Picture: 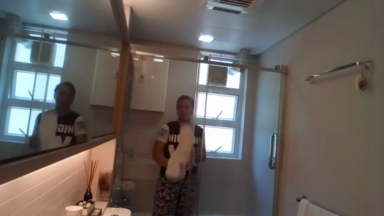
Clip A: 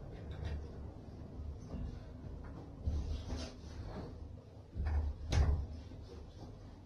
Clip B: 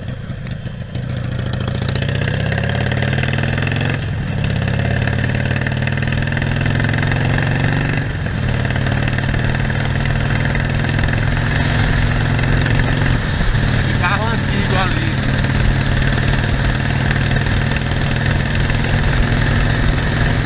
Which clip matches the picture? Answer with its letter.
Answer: A